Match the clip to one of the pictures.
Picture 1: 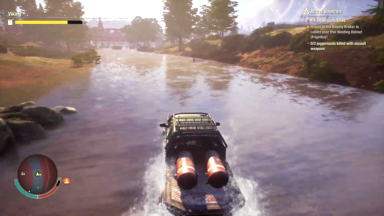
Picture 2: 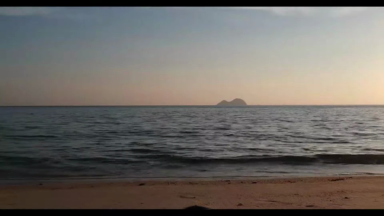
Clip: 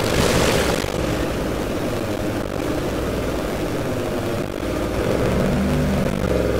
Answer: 1